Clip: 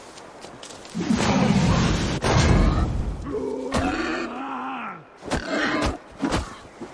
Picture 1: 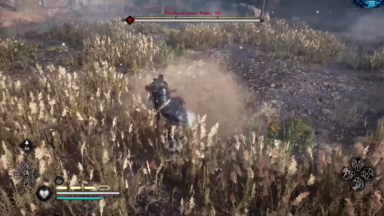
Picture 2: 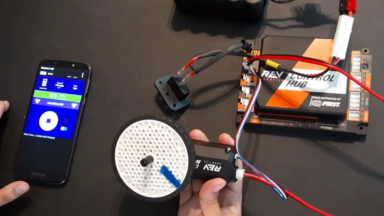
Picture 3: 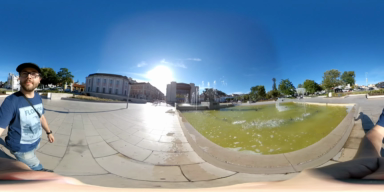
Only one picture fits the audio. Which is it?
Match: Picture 1